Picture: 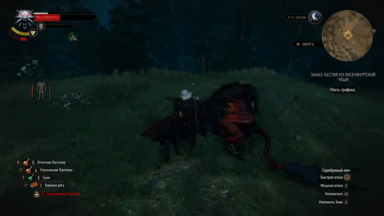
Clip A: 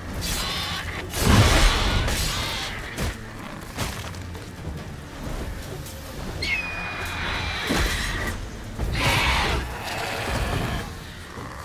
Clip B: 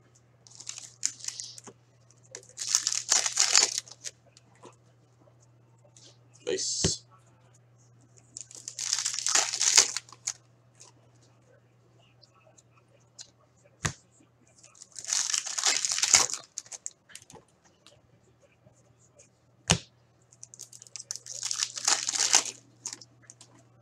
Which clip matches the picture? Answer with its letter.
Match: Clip A